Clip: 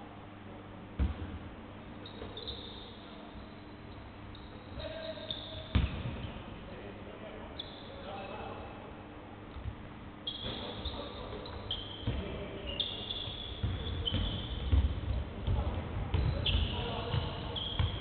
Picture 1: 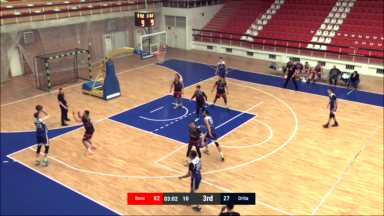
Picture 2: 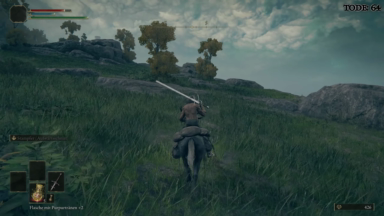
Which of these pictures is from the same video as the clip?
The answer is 1